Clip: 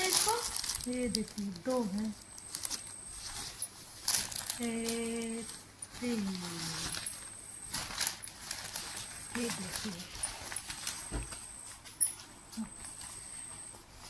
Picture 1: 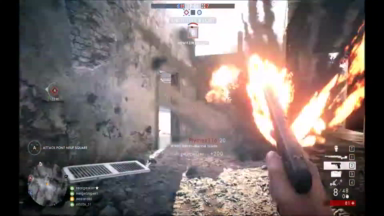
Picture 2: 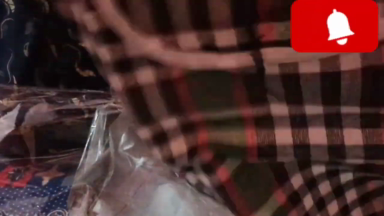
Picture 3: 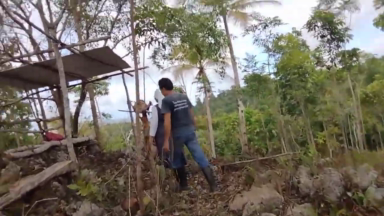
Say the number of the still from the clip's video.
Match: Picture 2